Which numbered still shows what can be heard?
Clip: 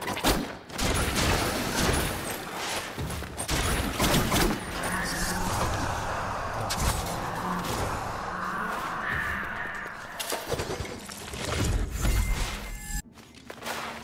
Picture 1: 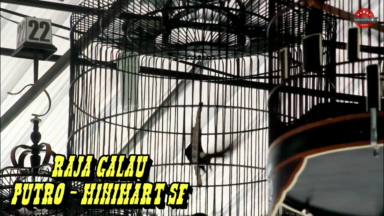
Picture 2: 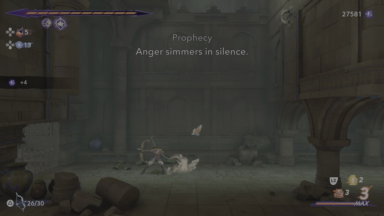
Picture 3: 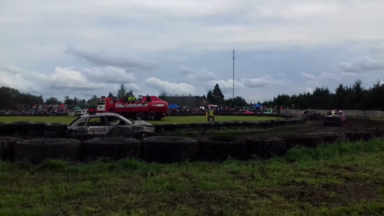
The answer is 2